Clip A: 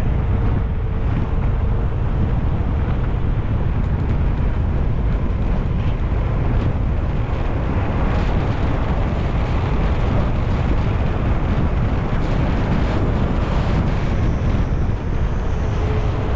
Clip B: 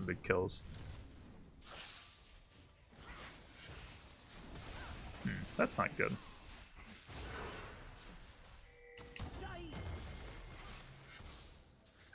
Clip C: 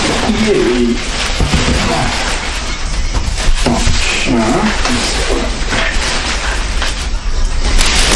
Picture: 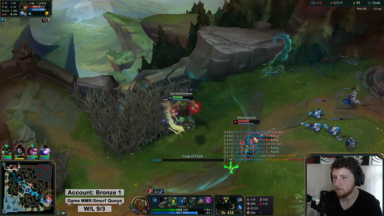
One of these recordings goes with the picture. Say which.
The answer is B